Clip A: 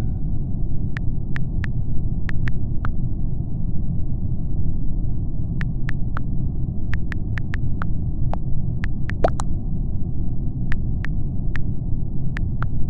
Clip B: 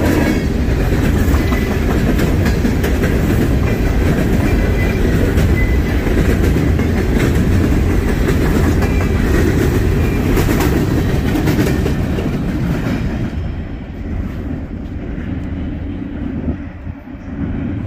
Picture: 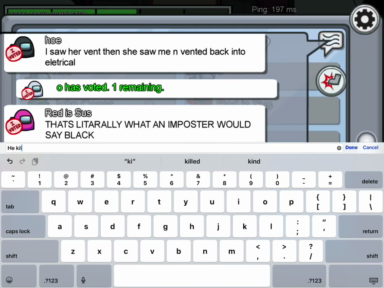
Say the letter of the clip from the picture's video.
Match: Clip A